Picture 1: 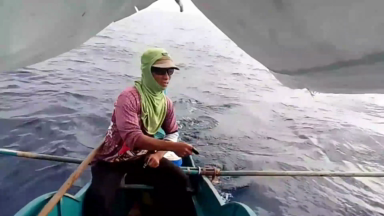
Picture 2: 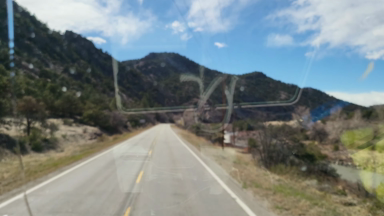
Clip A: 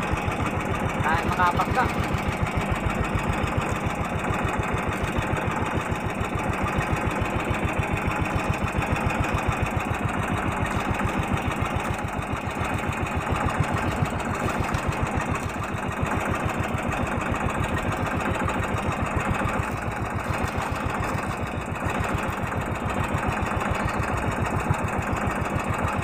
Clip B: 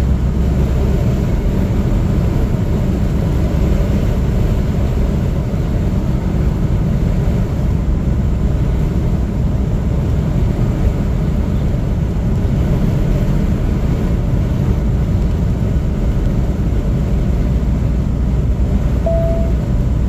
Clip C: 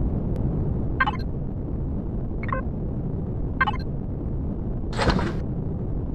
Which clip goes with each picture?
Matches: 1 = A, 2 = B